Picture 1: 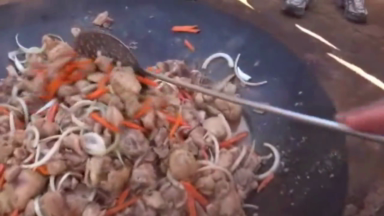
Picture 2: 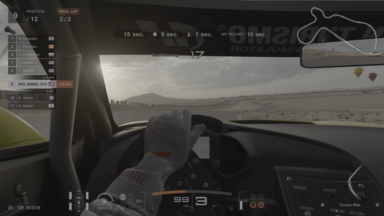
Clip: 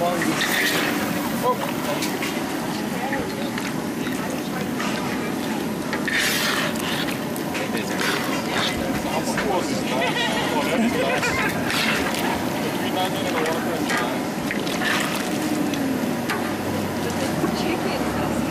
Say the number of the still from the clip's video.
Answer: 1